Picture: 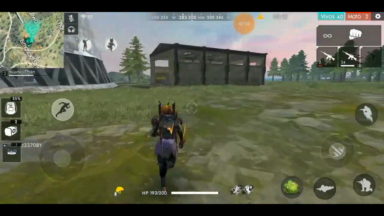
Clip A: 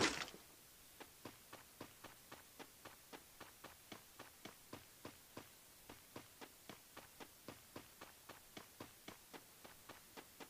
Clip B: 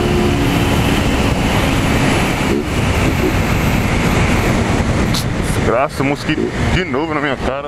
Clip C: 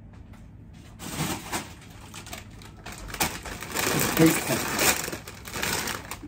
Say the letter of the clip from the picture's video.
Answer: A